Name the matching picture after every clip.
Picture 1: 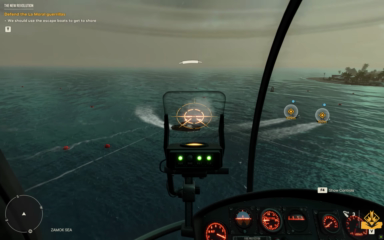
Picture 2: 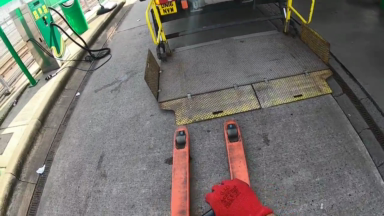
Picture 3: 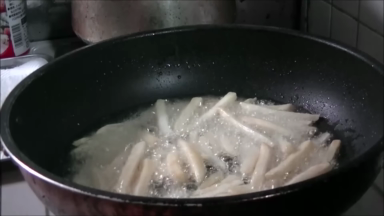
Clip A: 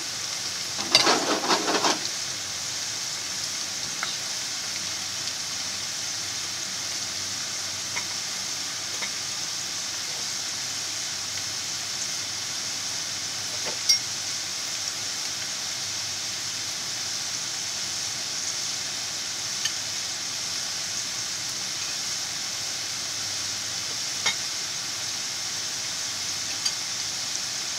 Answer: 3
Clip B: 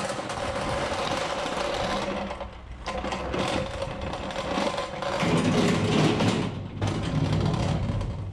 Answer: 2